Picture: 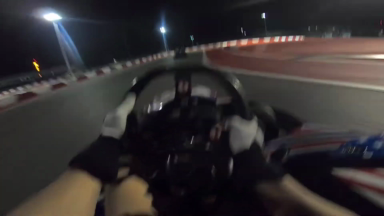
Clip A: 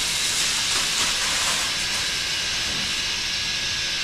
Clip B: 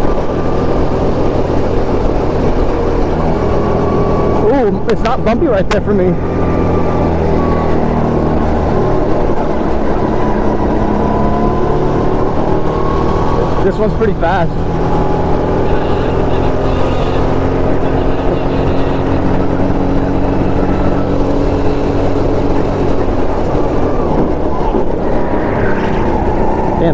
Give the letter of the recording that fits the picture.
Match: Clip B